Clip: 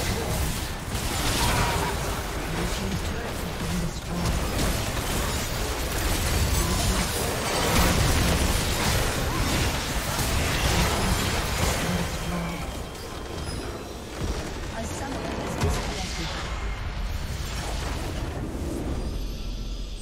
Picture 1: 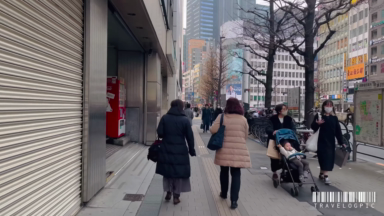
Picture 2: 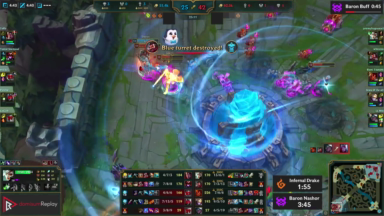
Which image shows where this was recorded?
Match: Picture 2